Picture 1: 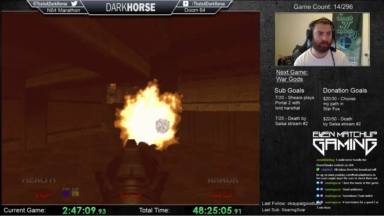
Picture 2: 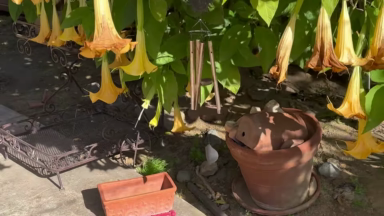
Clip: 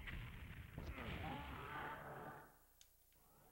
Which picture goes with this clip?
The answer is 1